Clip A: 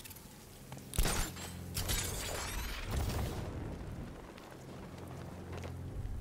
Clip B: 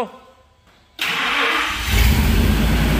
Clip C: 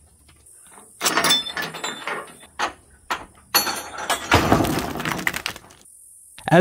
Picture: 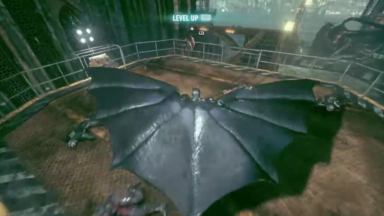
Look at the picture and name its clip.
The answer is A